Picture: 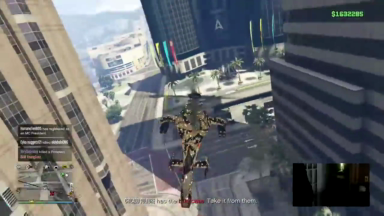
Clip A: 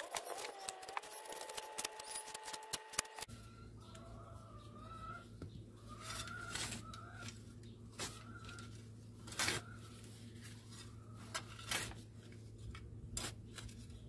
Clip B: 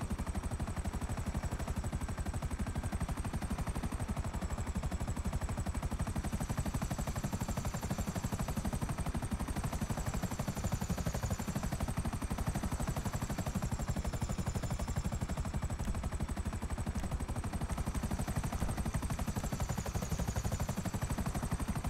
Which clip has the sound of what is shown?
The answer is B